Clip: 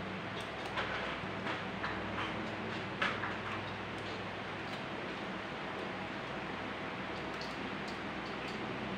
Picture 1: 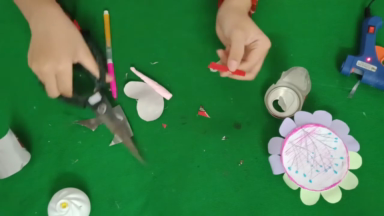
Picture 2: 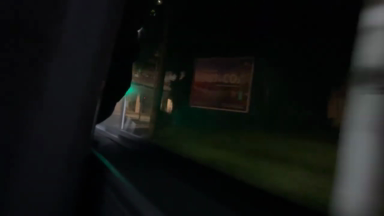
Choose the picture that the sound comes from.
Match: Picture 1